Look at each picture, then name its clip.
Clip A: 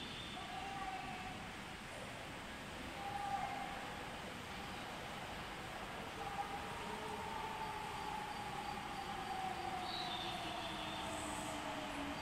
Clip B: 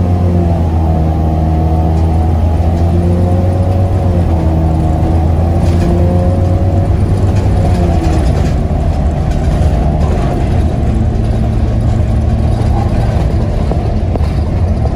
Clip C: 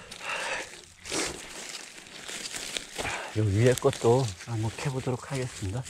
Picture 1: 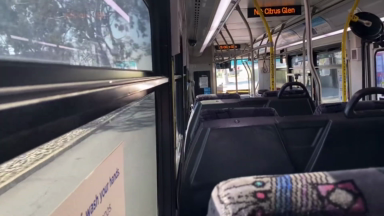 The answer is B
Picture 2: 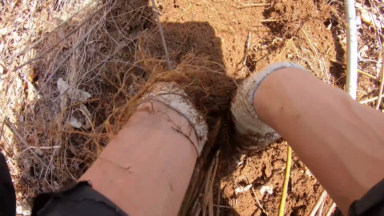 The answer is C